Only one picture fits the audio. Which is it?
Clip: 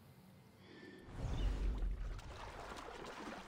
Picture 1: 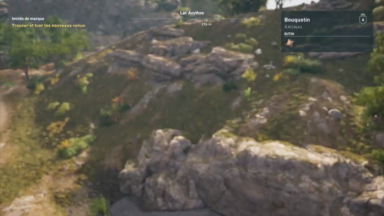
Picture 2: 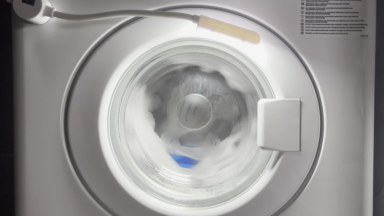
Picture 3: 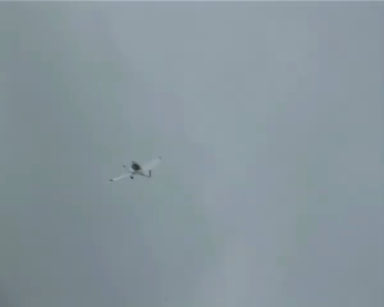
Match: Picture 1